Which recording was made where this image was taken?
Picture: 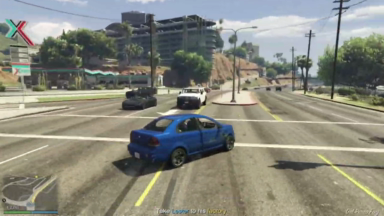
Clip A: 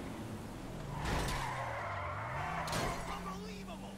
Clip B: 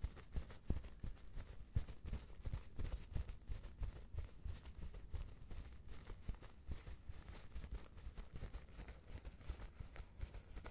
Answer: A